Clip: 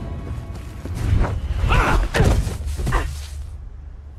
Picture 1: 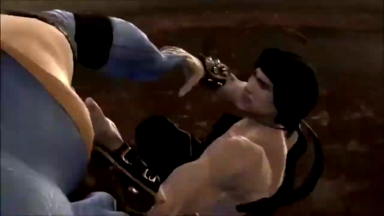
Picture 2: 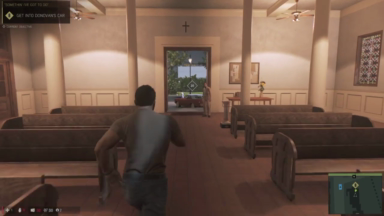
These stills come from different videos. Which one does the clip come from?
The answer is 1